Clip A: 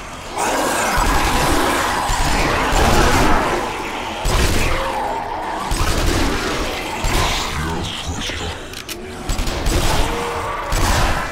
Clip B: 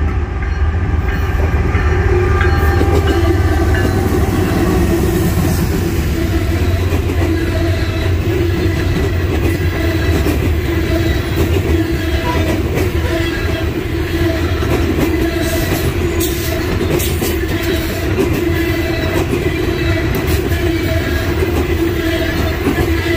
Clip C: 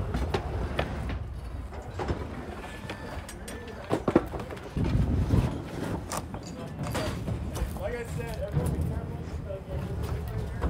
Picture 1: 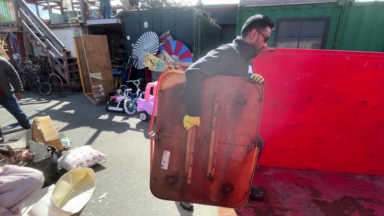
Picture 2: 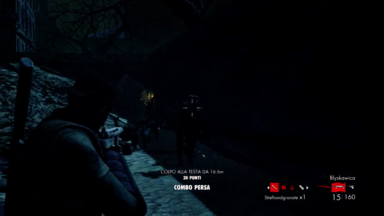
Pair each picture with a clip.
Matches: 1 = C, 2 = A